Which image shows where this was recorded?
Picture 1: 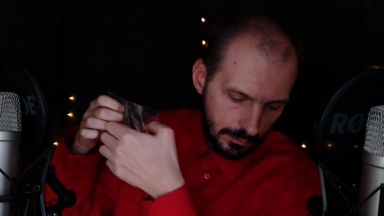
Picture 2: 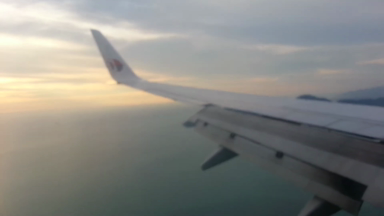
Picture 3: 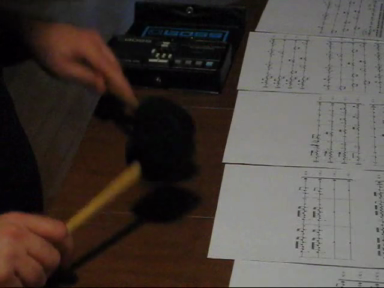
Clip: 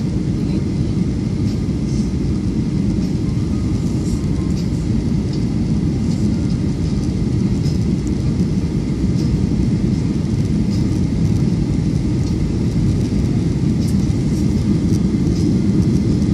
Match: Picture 2